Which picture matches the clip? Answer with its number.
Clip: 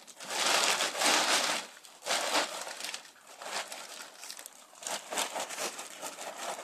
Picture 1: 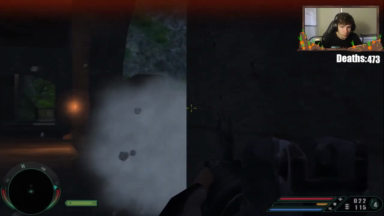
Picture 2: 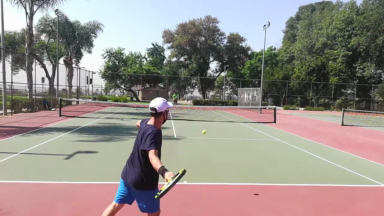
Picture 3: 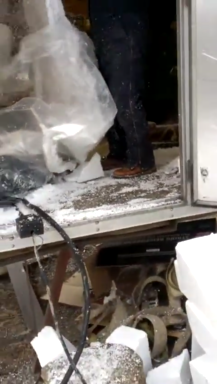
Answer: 3